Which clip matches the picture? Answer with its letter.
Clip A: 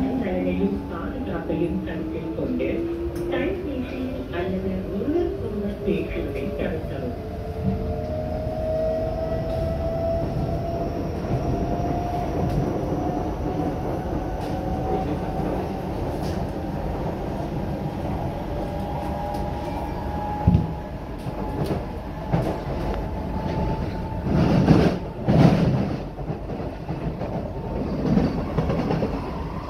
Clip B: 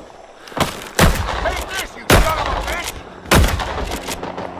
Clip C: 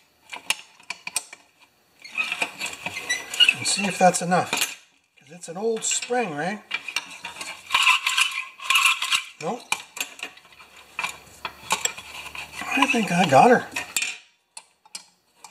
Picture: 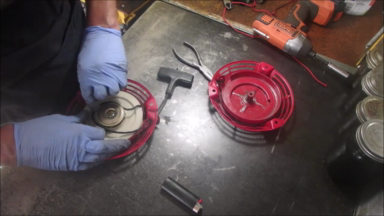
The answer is C